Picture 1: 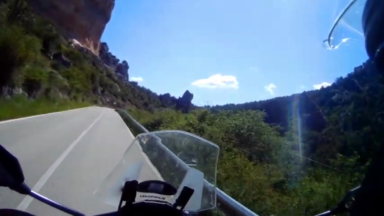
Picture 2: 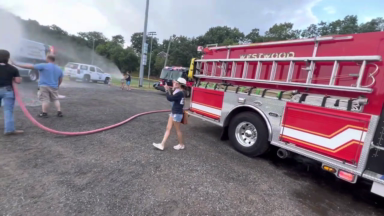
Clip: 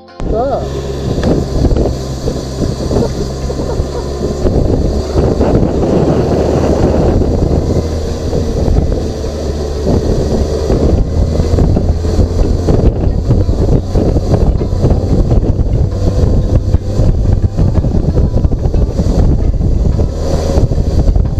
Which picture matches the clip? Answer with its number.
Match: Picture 1